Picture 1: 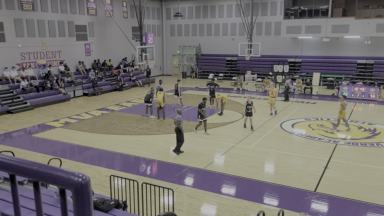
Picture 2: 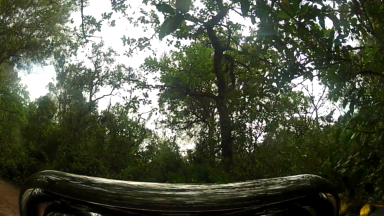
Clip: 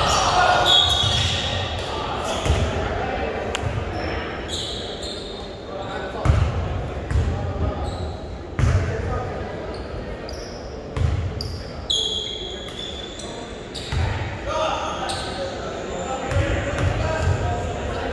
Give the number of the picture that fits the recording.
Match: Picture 1